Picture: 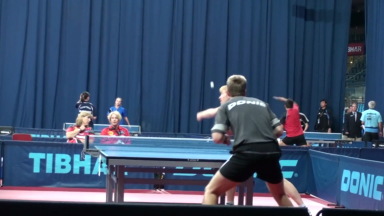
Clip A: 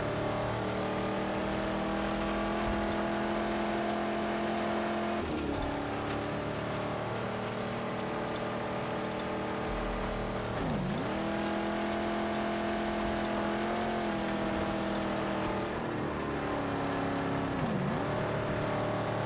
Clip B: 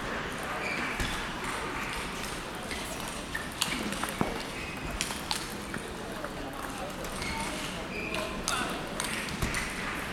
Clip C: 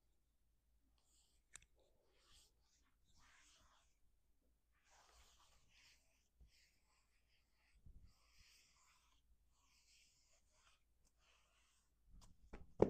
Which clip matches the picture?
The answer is B